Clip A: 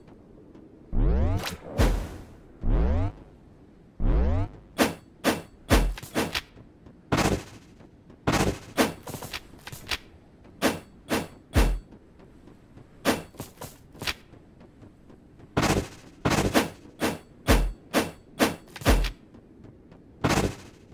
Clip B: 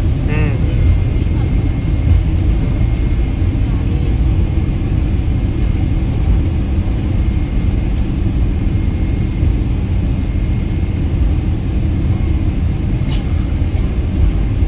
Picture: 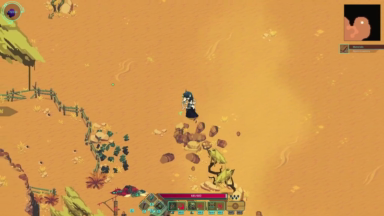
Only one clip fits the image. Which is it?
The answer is A